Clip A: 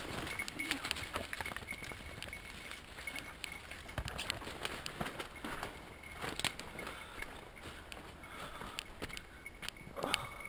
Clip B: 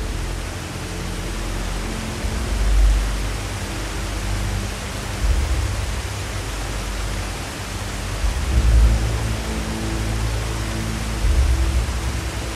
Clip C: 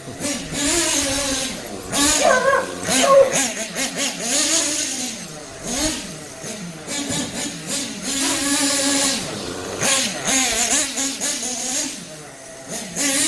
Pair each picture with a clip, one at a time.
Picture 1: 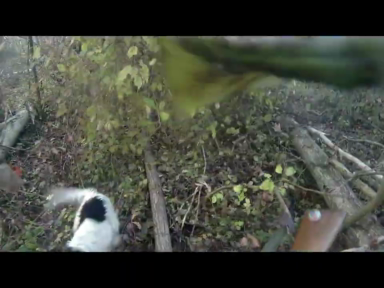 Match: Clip A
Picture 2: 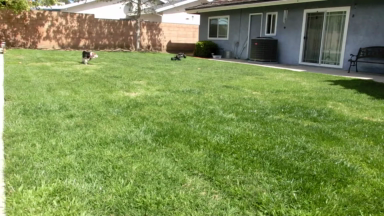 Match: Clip C